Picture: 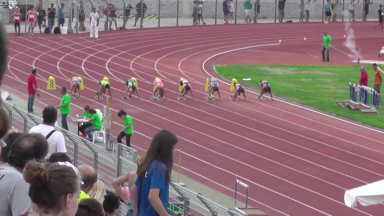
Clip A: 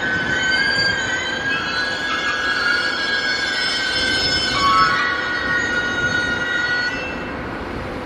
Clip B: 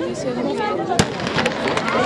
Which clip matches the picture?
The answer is B